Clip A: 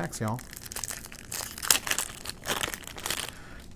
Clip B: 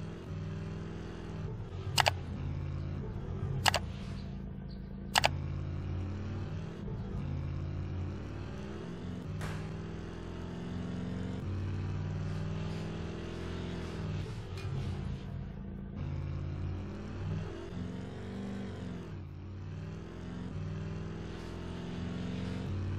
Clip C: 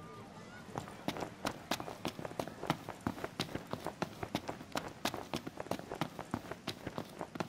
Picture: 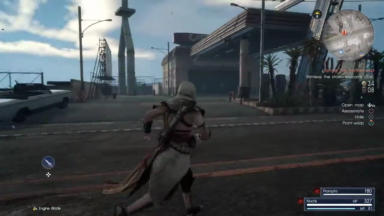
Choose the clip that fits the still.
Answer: C